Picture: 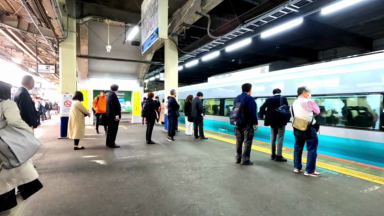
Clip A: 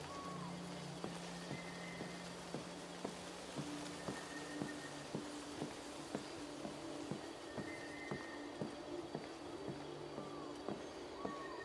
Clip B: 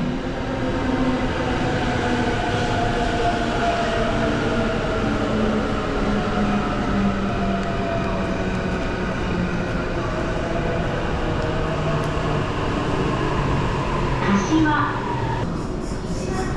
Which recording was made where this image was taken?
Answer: B